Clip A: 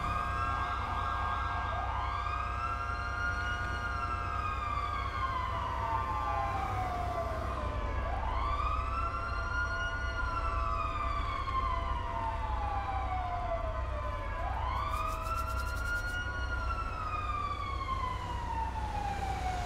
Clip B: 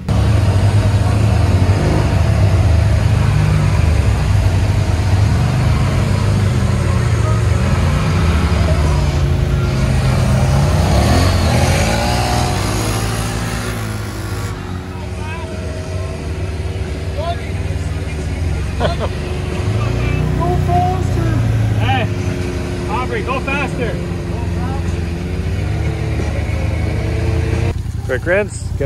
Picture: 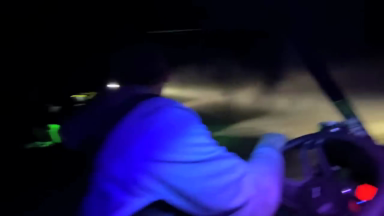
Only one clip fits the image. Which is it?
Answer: B